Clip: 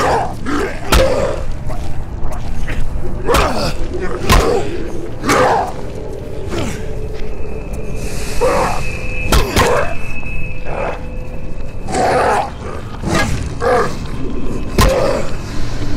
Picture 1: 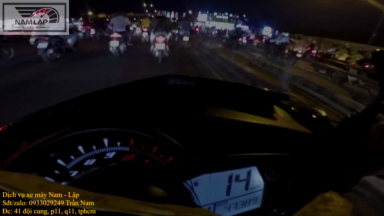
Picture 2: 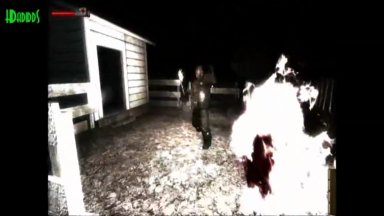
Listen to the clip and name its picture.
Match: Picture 2